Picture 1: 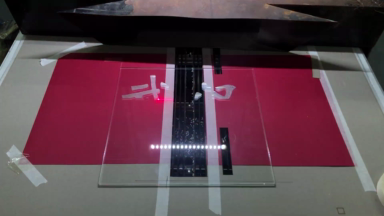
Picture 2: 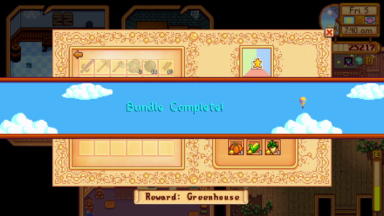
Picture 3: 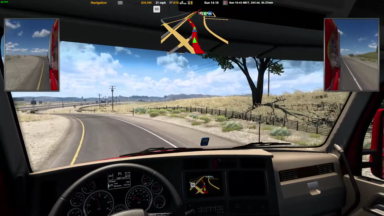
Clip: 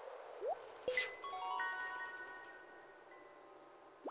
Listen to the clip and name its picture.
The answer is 2